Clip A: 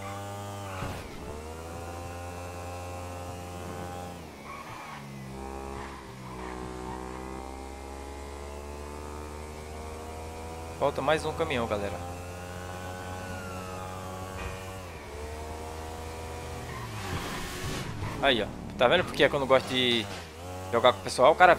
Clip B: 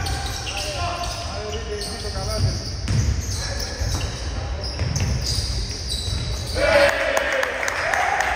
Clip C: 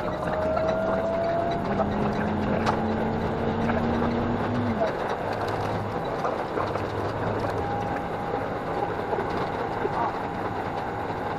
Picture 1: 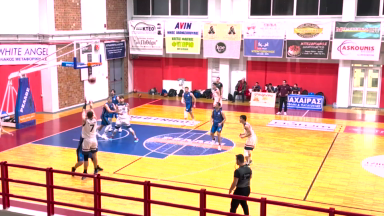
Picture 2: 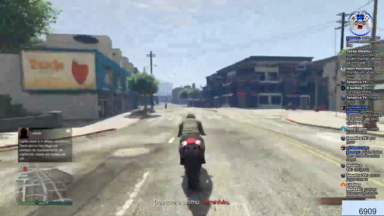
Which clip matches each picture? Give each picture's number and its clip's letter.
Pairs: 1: B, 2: A